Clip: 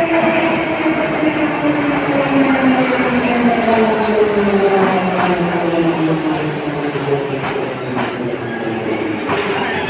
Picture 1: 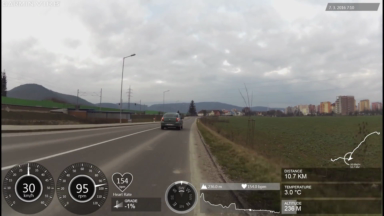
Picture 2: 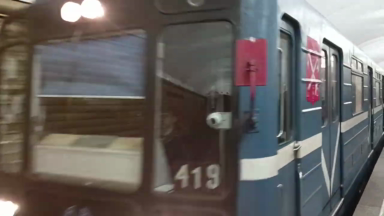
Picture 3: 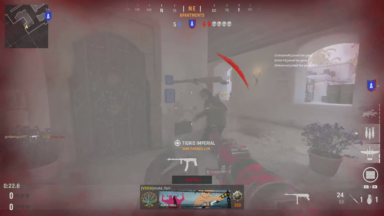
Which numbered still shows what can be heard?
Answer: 2